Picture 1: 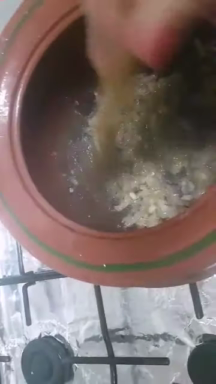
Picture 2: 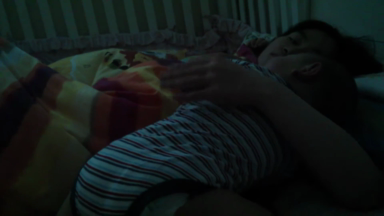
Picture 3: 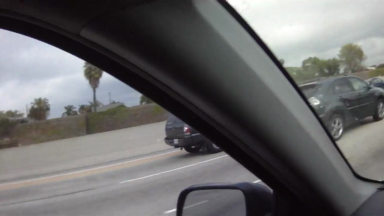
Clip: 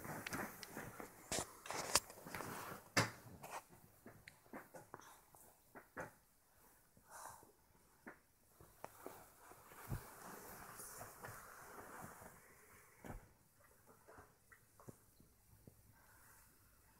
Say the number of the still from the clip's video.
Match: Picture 2